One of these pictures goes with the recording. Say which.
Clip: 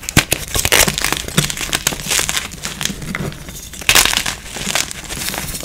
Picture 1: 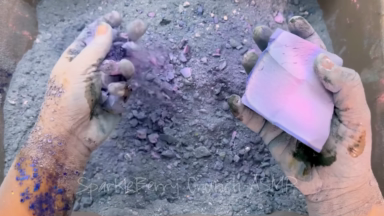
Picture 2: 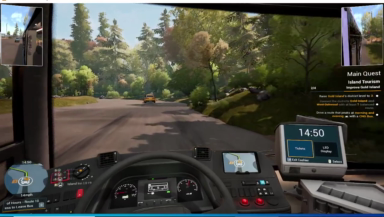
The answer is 1